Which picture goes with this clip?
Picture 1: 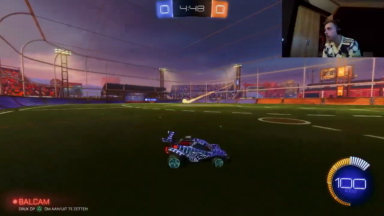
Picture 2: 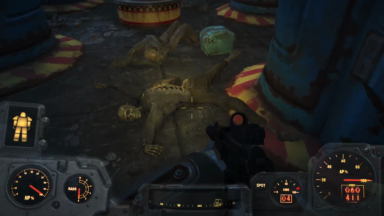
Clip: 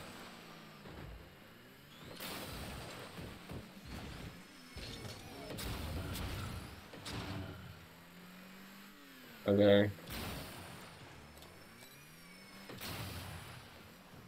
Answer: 1